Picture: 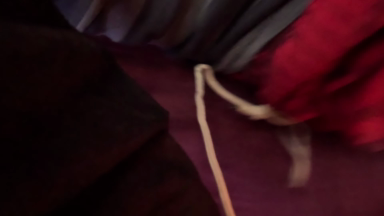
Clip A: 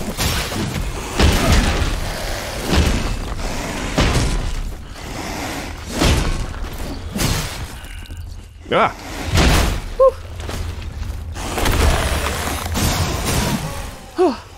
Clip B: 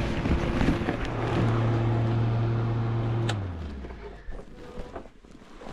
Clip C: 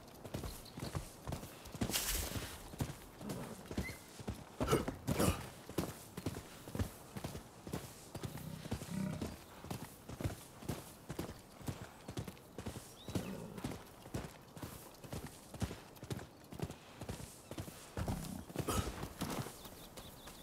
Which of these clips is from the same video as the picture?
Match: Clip B